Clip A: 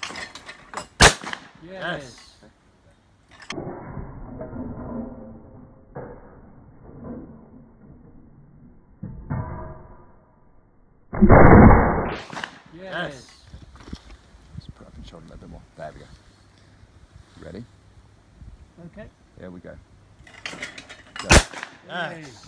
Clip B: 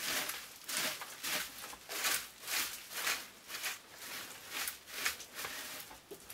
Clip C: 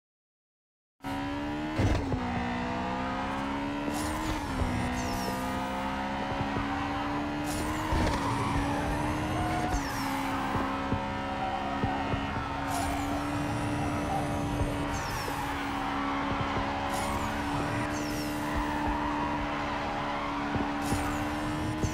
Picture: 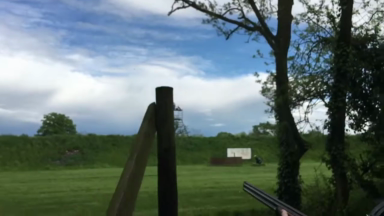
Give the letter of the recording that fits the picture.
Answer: A